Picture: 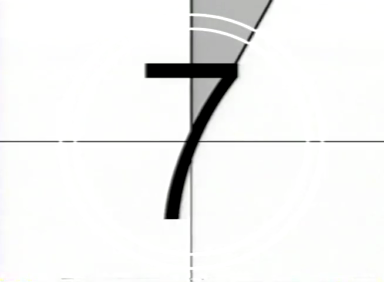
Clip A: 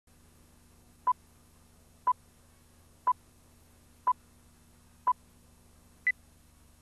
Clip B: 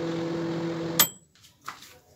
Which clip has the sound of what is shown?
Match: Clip A